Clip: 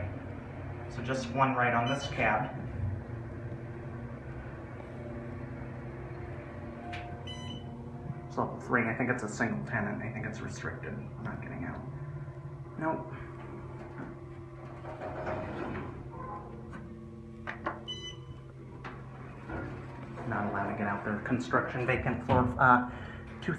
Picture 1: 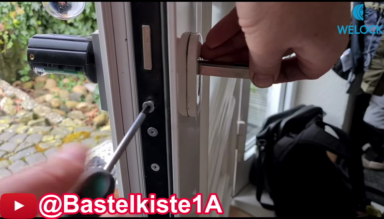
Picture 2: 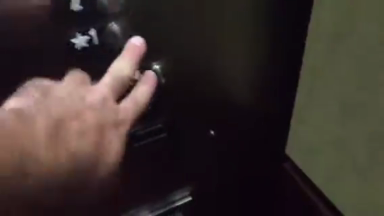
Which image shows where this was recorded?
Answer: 2